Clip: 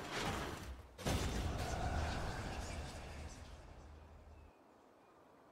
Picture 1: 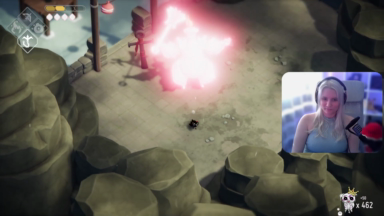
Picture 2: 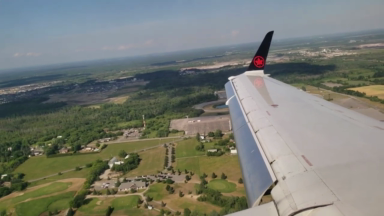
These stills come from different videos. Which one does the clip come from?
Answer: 1